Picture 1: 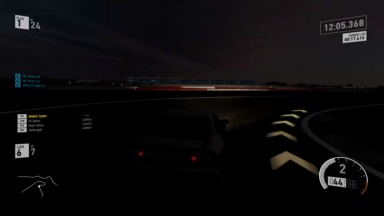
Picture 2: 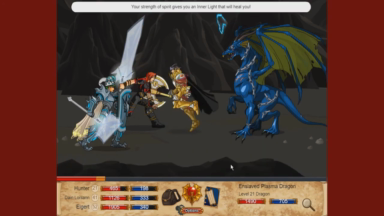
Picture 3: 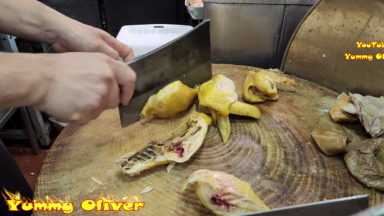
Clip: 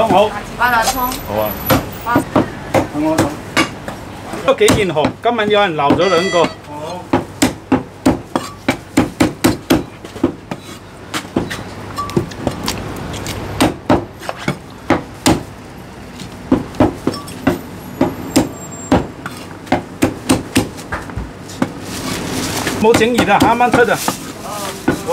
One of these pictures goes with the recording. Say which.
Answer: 3